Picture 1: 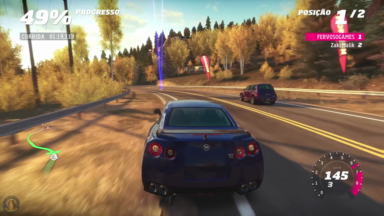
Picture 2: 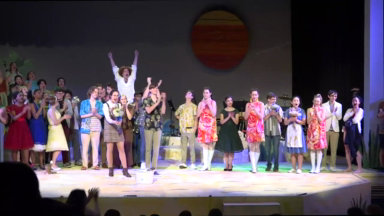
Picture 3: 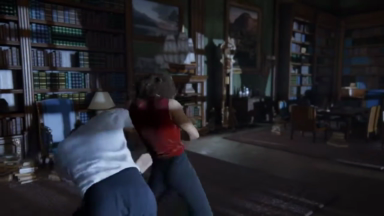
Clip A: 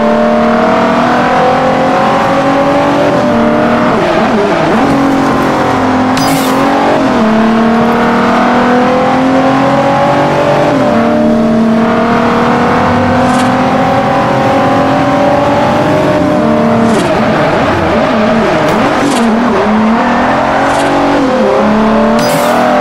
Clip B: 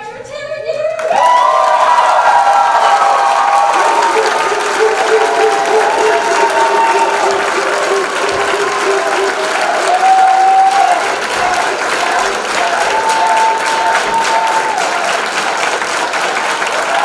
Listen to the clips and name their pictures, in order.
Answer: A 1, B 2